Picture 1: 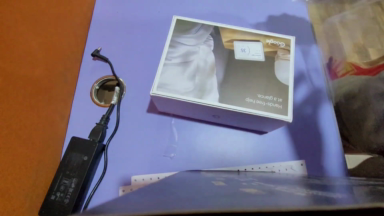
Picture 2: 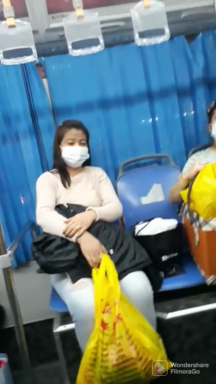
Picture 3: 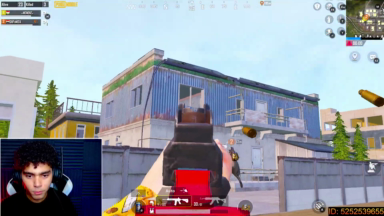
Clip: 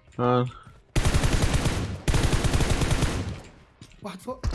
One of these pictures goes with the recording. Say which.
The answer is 3